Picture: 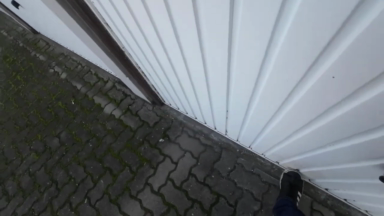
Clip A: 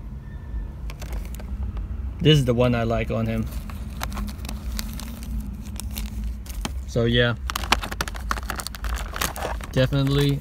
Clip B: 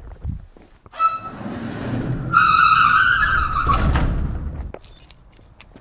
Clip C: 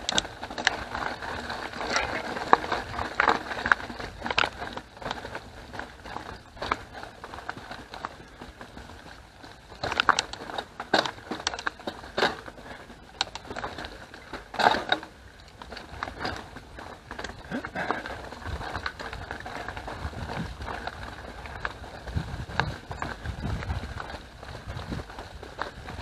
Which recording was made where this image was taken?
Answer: B